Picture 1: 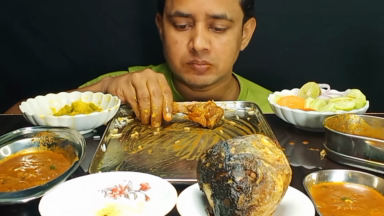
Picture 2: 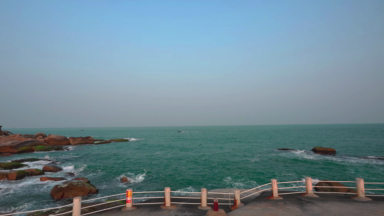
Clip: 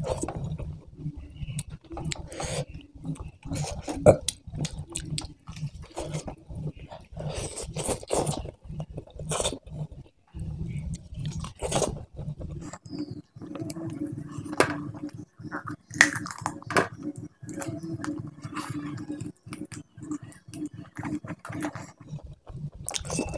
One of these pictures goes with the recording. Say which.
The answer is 1